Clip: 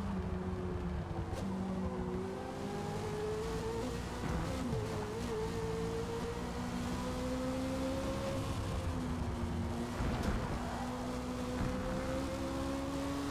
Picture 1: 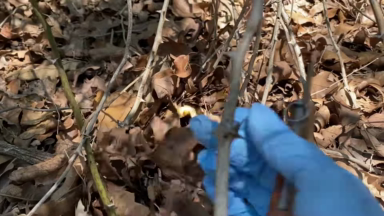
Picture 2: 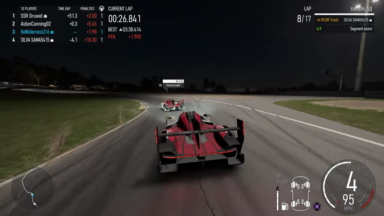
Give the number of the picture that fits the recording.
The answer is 2